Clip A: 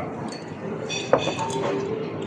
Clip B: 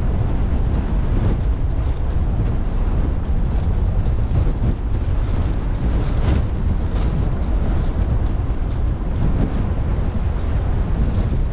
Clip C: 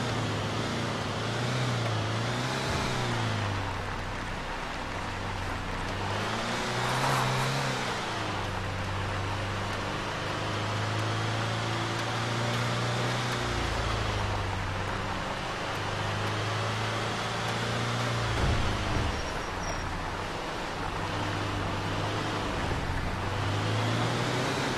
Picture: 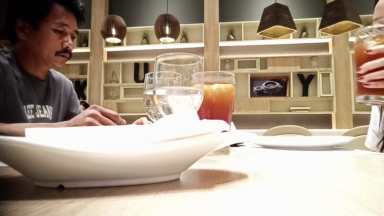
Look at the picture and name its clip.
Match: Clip A